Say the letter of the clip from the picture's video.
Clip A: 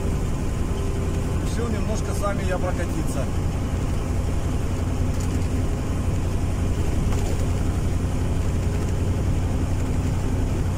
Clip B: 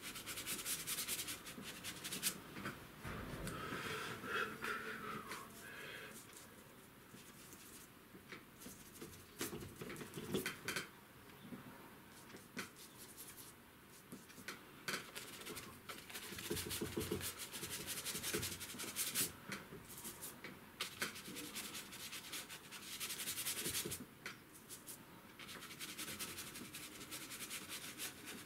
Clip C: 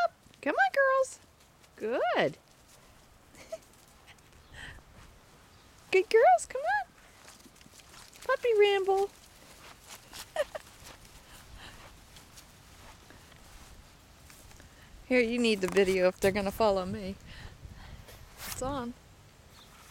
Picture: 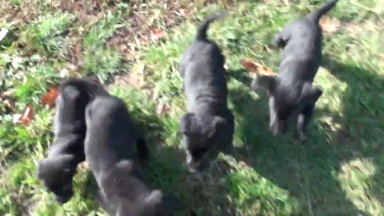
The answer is C